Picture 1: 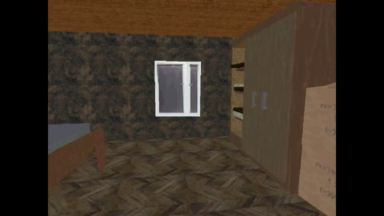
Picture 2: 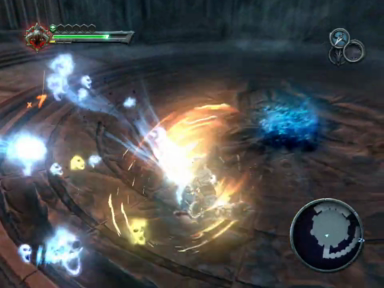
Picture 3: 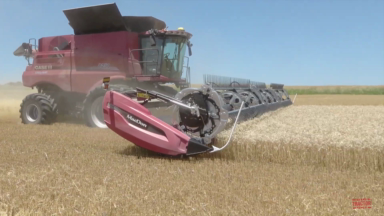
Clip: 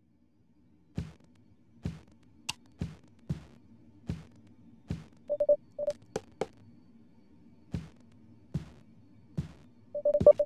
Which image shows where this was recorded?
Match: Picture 1